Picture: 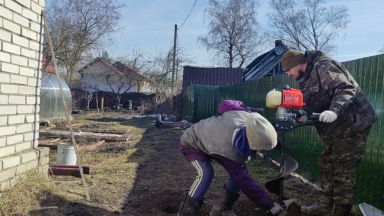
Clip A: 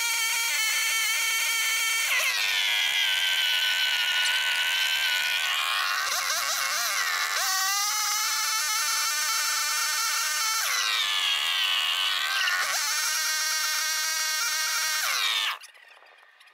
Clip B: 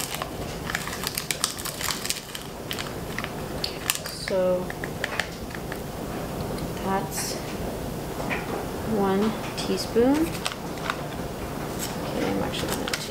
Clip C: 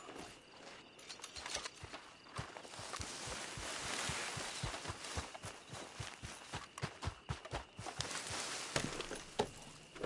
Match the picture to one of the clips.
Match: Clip A